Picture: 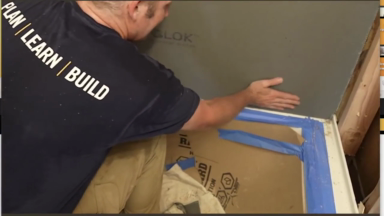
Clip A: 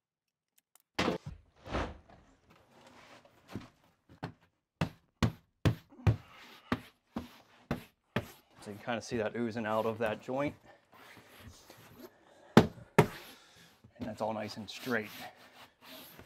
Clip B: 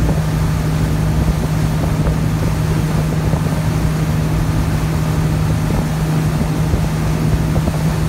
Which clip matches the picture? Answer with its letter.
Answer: A